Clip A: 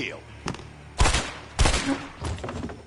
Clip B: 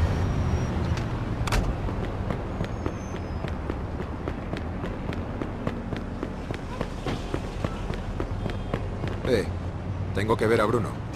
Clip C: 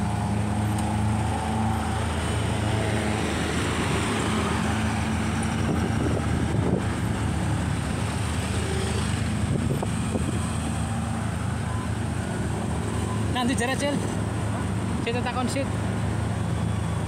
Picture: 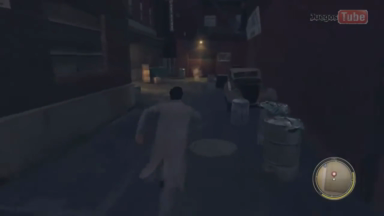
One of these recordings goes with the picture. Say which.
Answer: B